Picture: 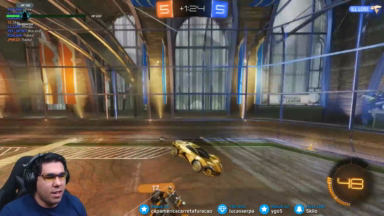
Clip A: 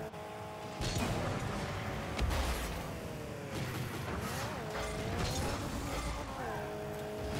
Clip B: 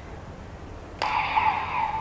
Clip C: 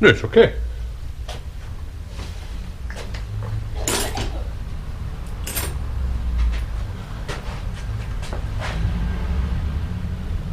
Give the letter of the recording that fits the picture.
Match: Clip A